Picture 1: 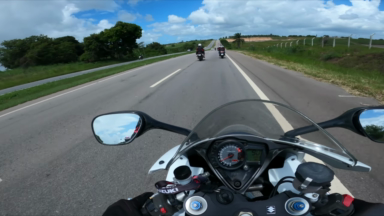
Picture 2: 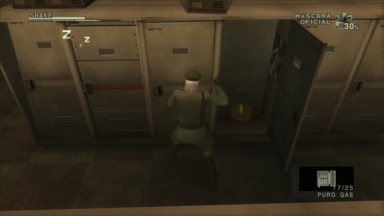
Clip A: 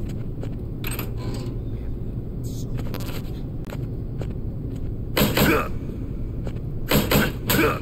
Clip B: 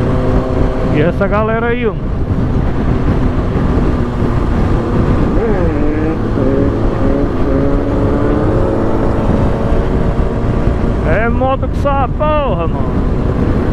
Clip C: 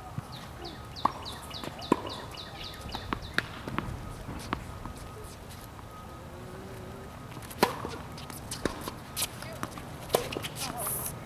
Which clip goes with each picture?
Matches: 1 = B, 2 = A